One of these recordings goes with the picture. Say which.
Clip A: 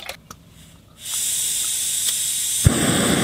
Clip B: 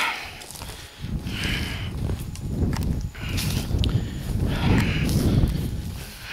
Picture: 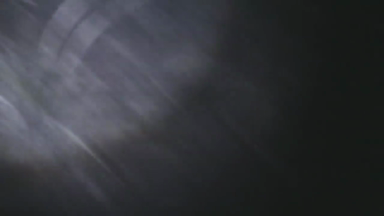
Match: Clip B